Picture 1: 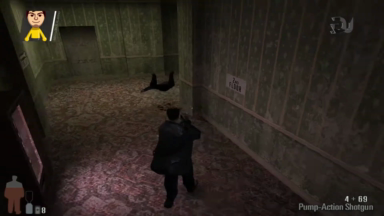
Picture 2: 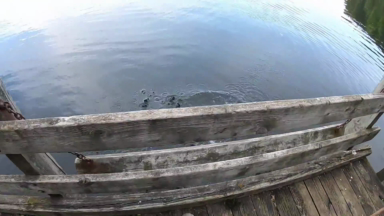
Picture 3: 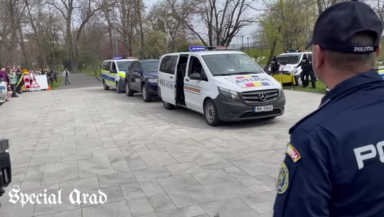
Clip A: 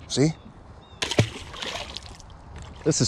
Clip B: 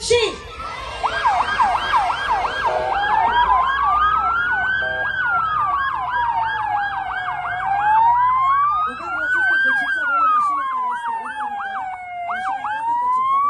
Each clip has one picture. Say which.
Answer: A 2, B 3